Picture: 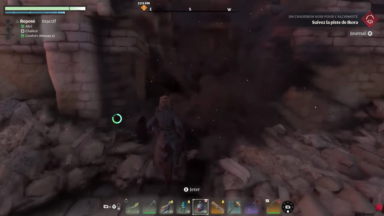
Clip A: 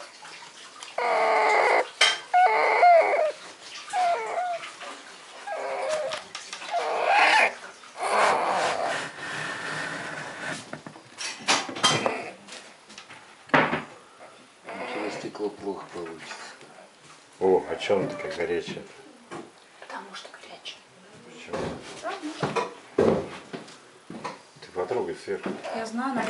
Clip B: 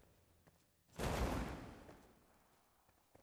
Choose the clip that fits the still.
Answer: B